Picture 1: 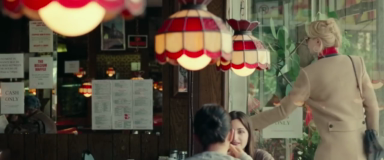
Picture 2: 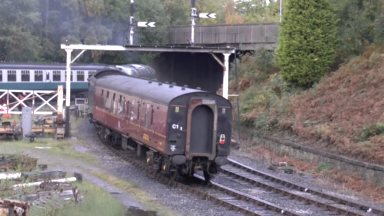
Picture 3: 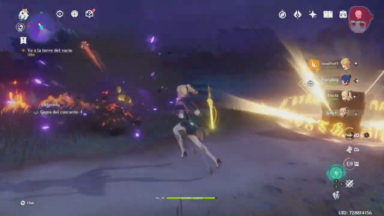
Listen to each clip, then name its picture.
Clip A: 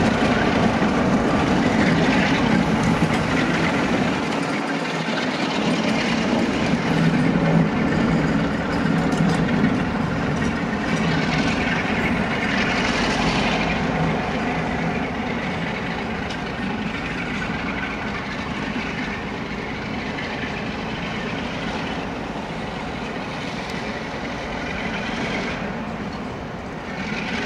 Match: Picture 2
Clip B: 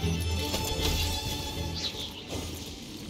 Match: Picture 3